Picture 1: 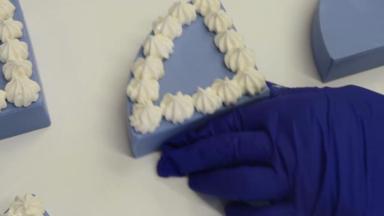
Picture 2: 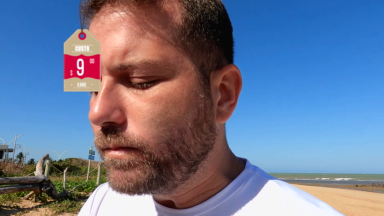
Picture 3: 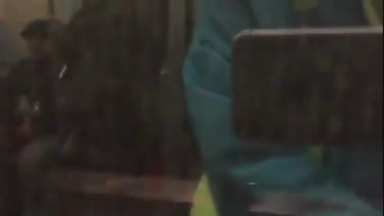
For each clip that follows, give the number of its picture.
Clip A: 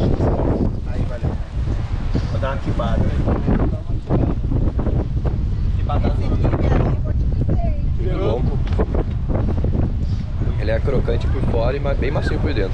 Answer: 2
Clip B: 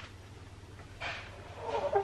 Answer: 1